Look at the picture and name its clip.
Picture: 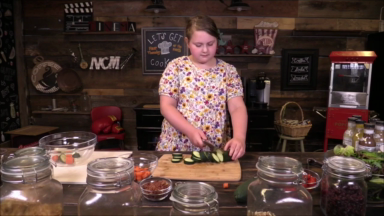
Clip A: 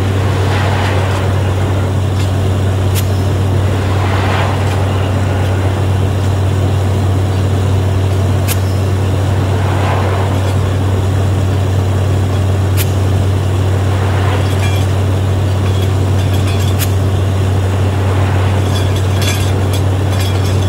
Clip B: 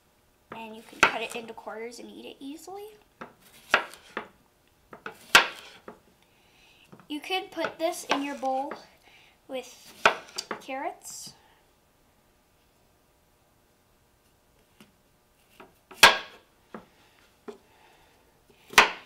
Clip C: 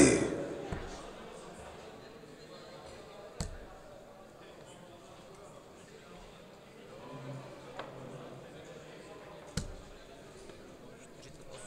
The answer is B